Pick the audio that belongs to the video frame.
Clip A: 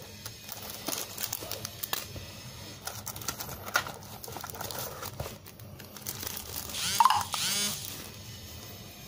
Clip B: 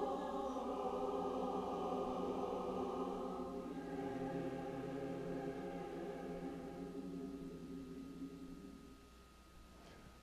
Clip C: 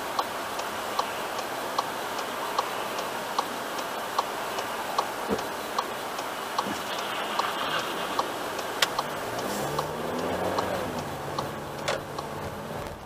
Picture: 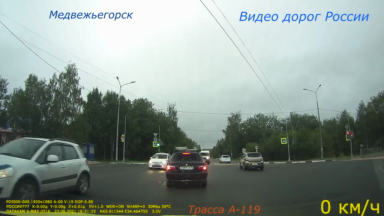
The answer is C